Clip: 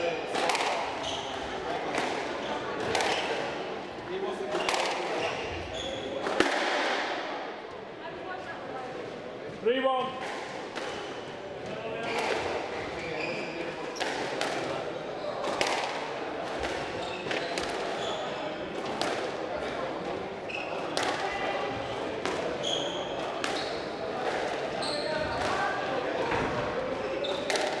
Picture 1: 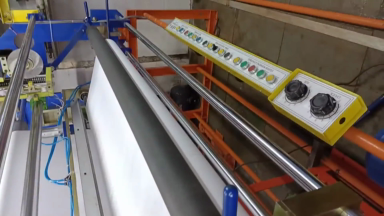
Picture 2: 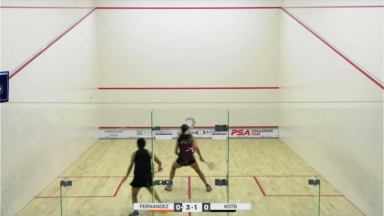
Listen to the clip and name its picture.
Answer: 2